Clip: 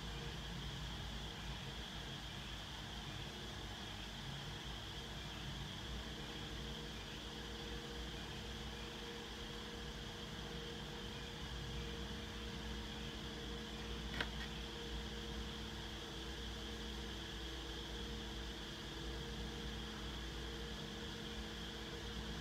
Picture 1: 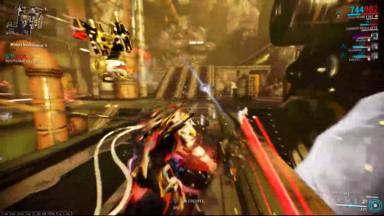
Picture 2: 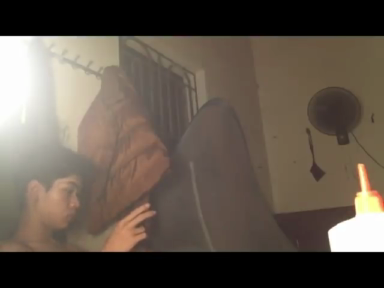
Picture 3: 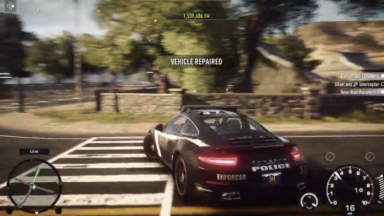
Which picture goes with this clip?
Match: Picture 2